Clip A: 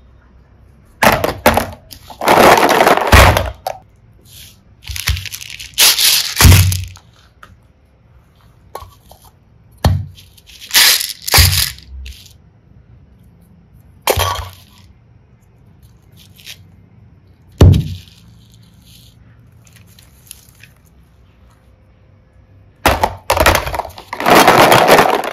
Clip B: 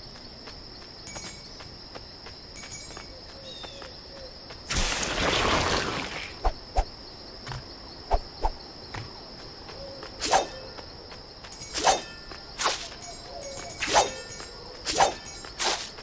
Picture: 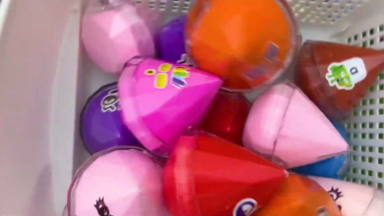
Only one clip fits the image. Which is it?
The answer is A